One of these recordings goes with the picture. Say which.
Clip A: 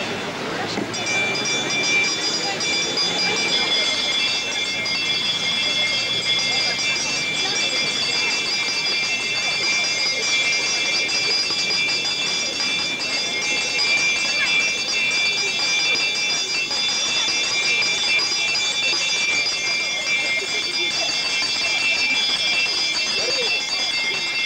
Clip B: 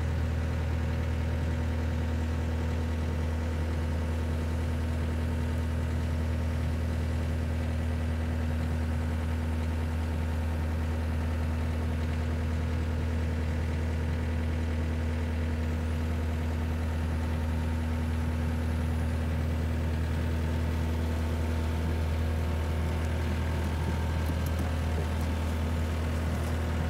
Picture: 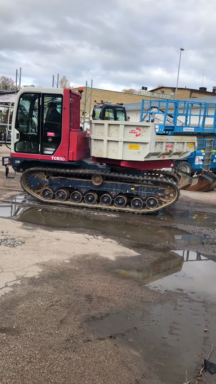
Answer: B